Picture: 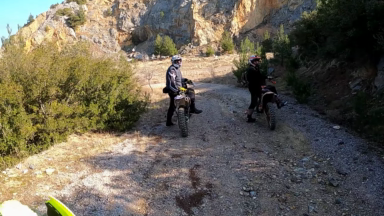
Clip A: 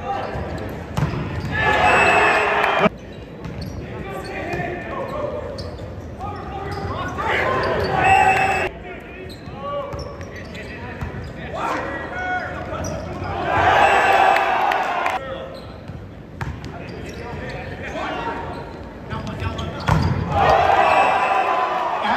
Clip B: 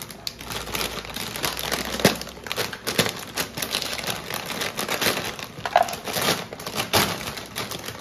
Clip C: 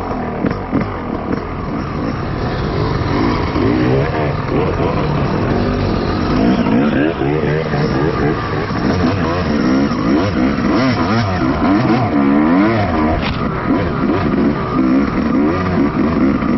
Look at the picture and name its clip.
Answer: C